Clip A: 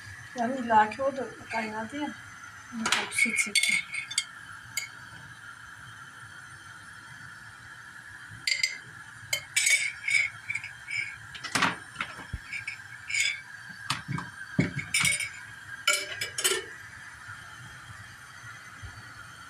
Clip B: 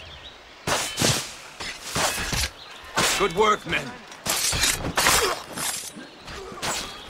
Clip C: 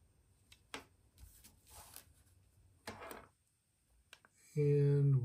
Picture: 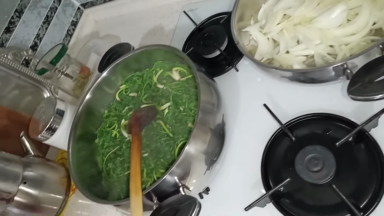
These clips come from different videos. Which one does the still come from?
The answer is A